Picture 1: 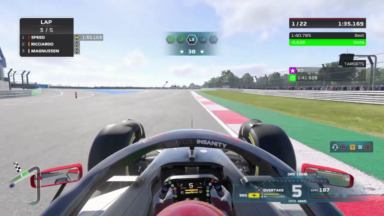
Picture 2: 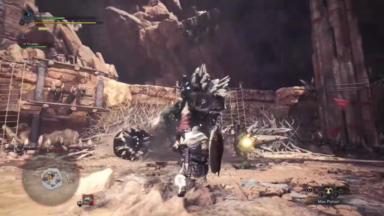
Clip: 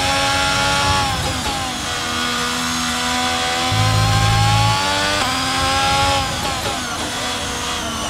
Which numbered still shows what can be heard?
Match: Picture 1